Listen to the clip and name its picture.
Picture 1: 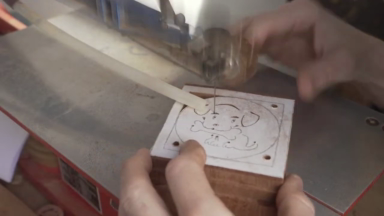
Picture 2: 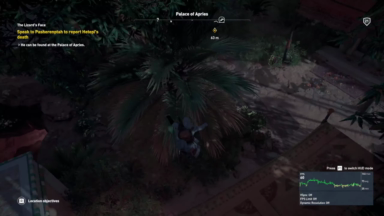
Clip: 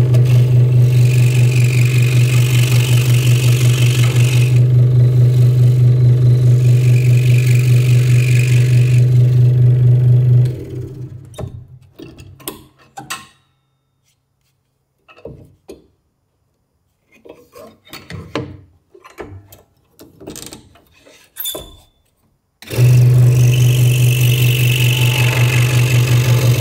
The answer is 1